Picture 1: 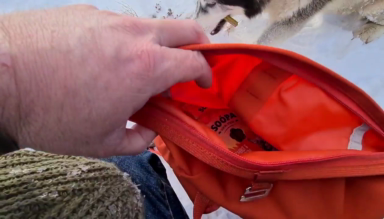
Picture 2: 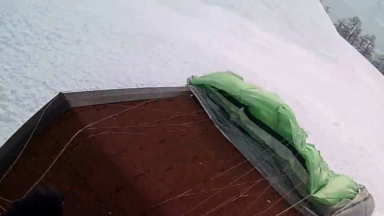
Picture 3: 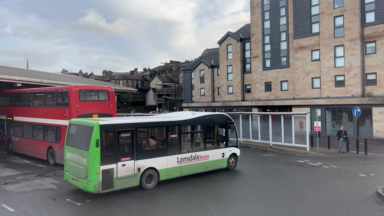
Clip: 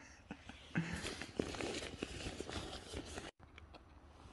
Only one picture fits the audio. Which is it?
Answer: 1